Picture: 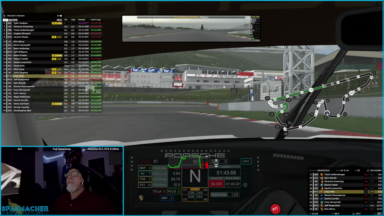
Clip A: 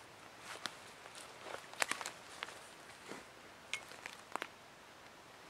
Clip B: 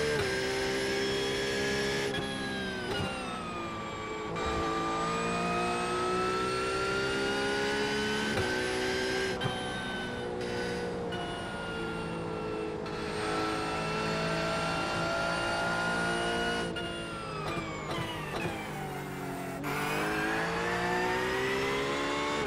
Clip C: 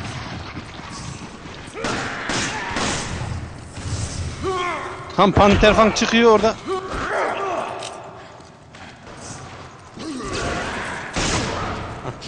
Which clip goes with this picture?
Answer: B